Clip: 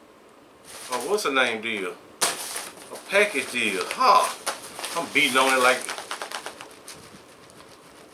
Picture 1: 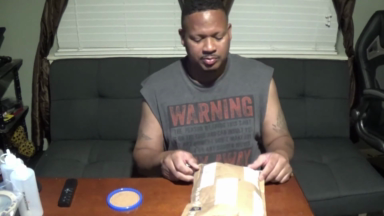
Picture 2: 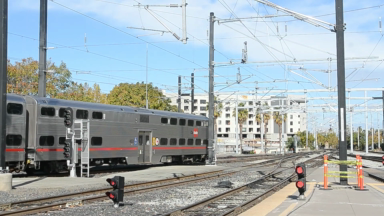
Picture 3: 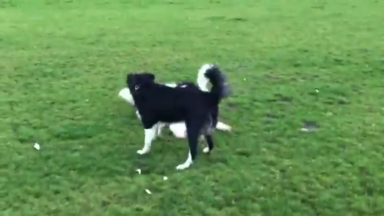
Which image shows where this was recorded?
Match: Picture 1